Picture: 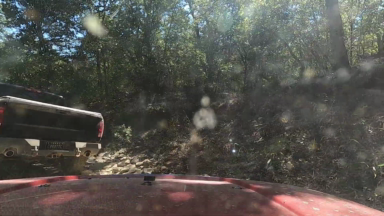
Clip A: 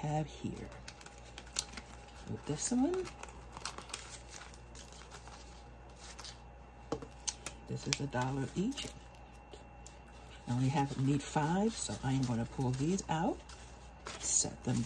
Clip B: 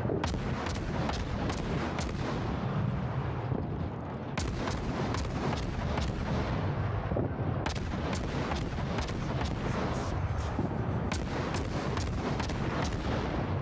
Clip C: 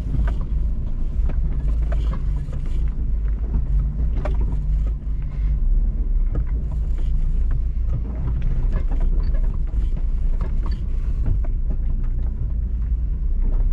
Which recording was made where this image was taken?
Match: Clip C